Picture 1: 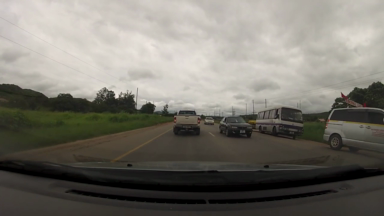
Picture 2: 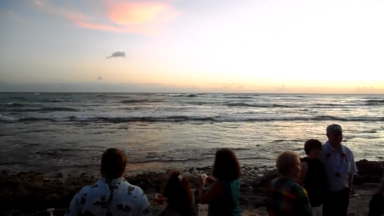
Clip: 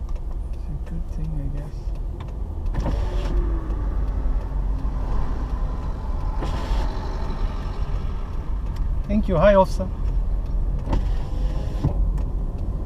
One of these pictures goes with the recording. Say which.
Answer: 1